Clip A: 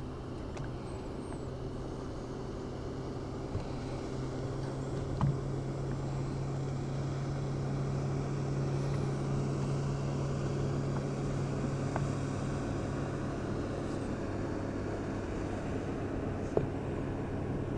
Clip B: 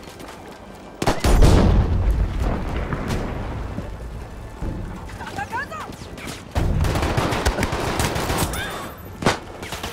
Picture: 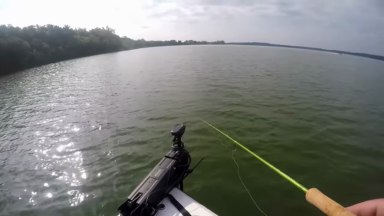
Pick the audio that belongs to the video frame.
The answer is A